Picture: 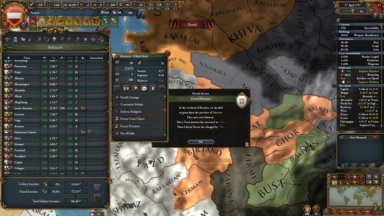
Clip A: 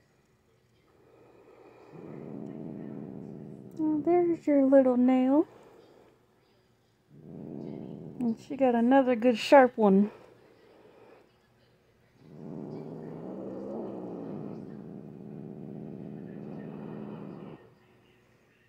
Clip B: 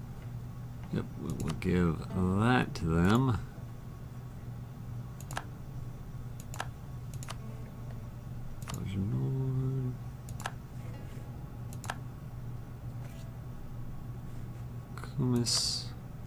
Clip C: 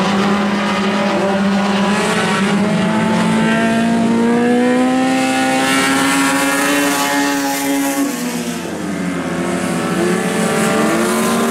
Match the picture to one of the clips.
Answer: B